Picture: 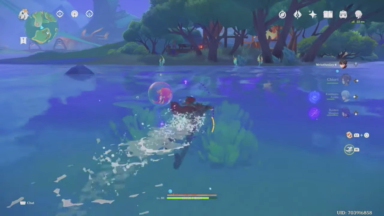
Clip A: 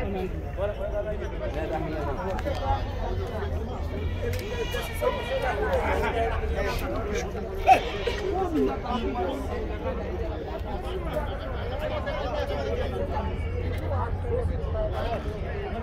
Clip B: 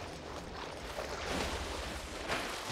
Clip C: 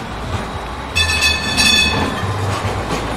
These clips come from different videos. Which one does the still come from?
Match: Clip B